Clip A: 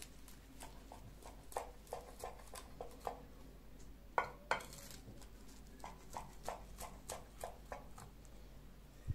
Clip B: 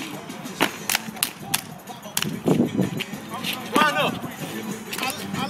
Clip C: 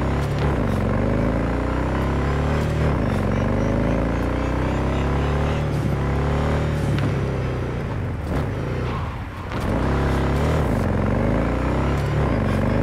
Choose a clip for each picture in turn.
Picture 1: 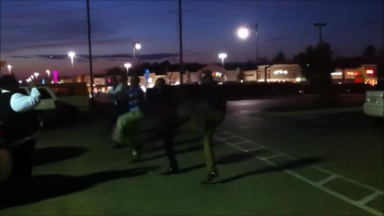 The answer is B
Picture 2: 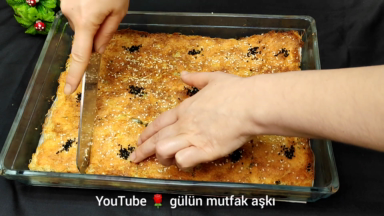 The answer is A